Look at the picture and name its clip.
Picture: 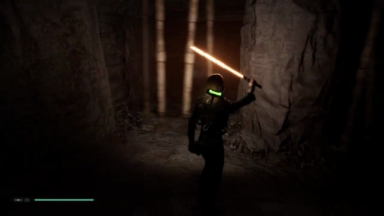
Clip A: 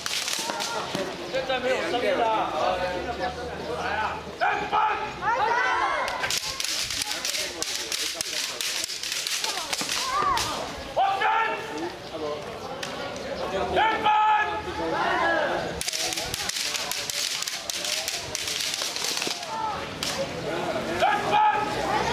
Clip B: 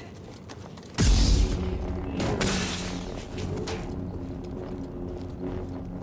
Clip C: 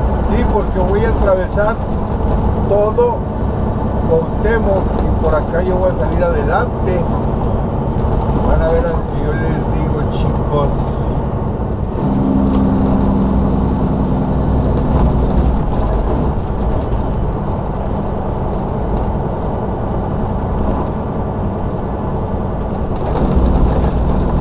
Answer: B